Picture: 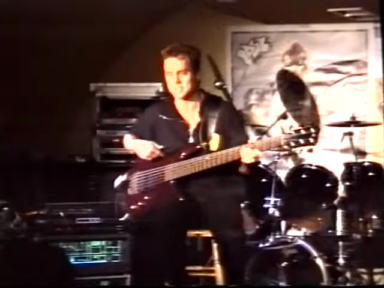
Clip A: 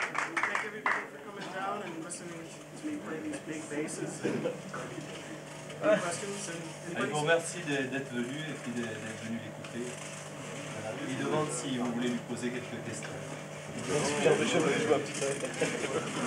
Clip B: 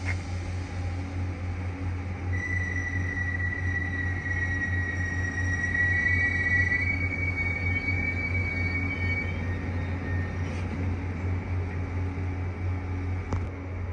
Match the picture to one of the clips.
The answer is A